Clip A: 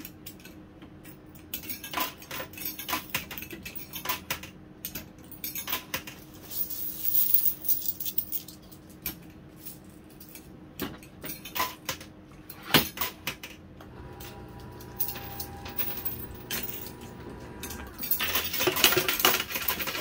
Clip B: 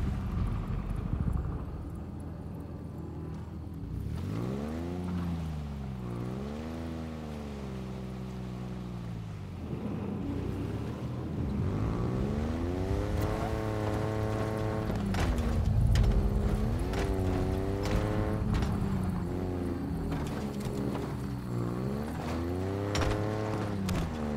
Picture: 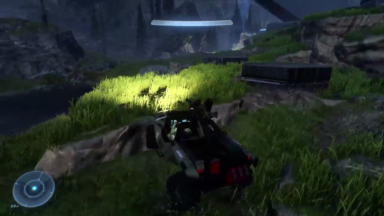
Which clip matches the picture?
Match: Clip B